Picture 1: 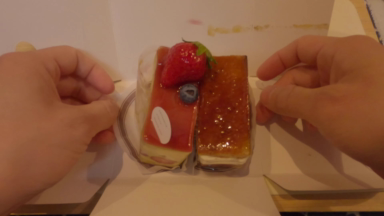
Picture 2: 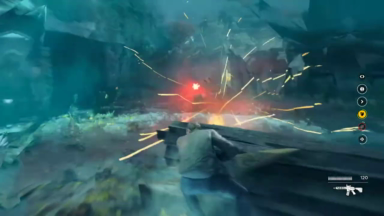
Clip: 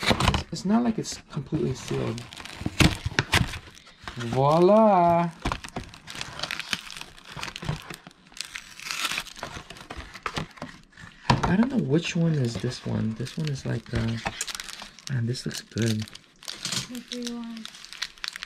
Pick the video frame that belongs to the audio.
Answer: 1